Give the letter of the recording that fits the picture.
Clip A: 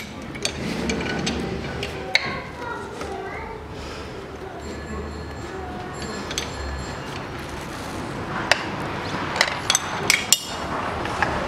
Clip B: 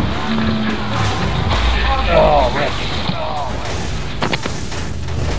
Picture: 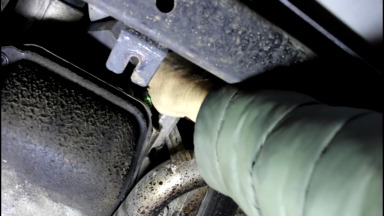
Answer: A